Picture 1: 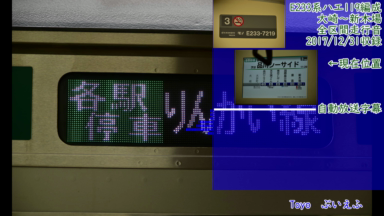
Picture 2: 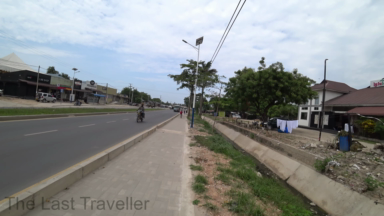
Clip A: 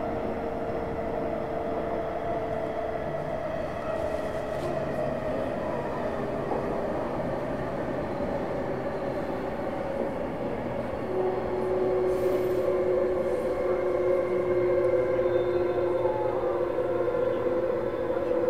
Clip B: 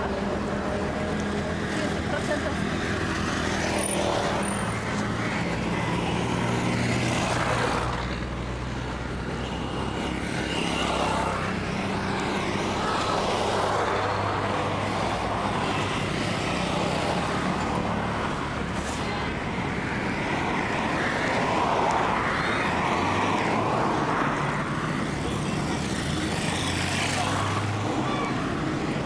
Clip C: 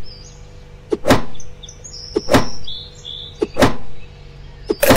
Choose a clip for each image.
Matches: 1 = A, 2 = B